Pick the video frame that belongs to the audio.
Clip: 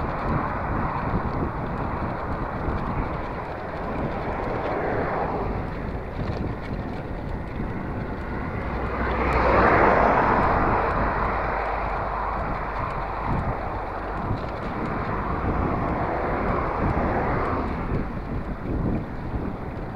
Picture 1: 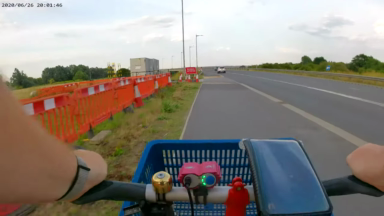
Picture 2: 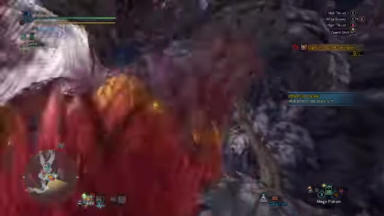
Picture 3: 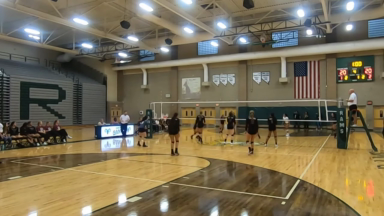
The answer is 1